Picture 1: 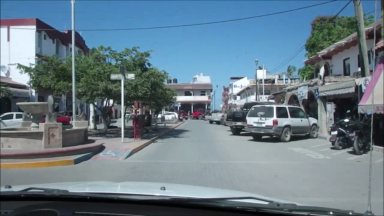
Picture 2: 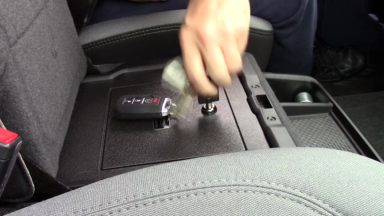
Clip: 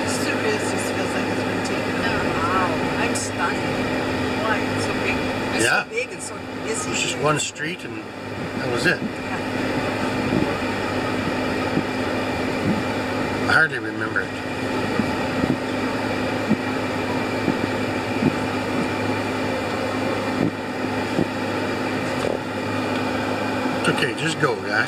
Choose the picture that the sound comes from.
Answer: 1